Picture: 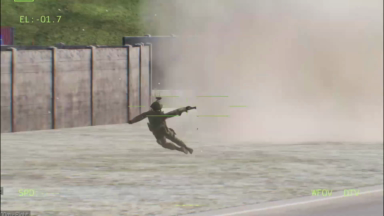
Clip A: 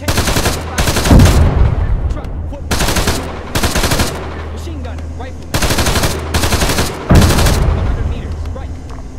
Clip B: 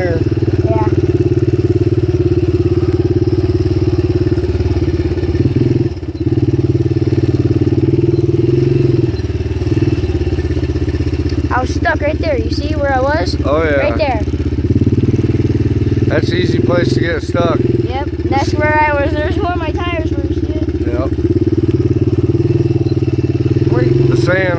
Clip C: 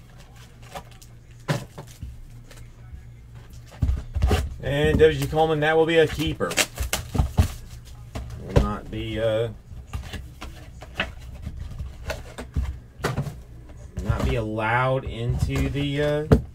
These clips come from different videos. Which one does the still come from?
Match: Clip A